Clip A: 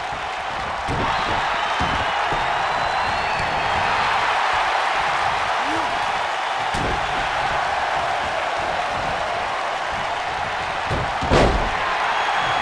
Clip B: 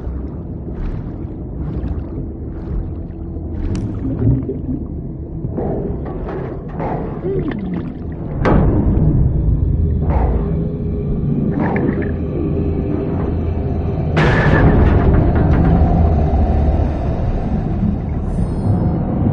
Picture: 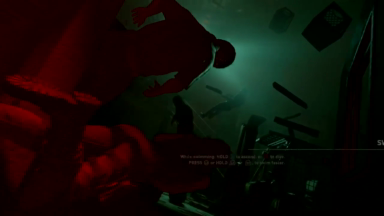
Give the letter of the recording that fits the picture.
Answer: B